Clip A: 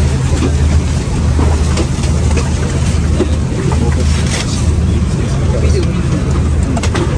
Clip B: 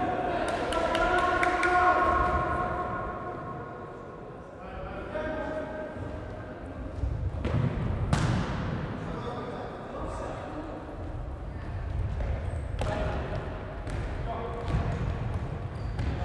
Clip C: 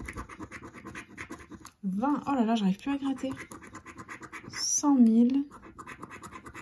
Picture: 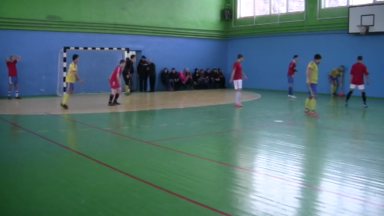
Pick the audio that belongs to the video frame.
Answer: B